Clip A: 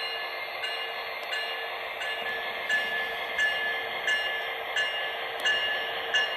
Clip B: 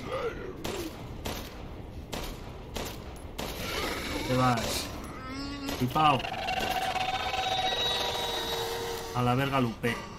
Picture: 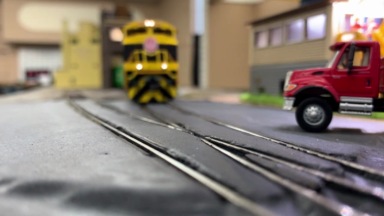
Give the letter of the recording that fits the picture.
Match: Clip A